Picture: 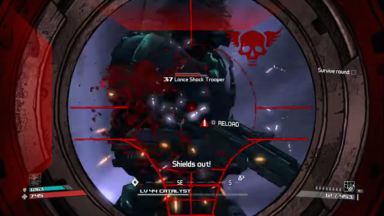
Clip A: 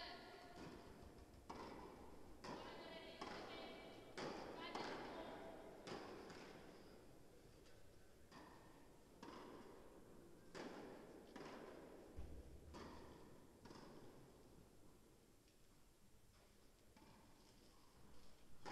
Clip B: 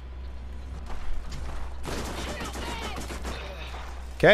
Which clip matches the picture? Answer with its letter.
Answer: B